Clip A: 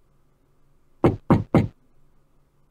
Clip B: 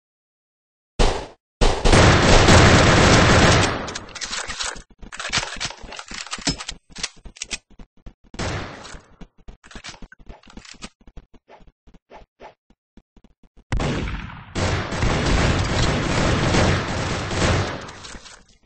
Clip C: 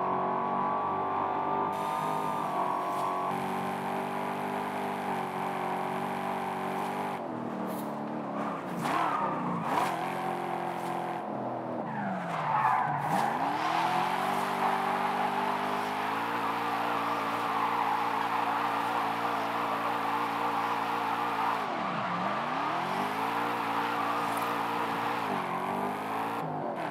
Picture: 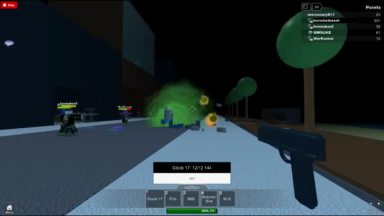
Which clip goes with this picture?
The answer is B